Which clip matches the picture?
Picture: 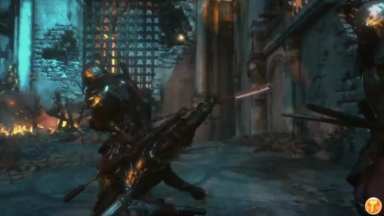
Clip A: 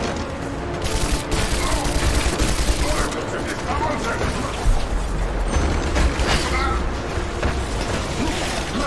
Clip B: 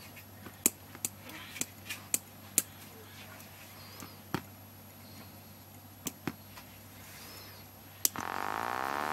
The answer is A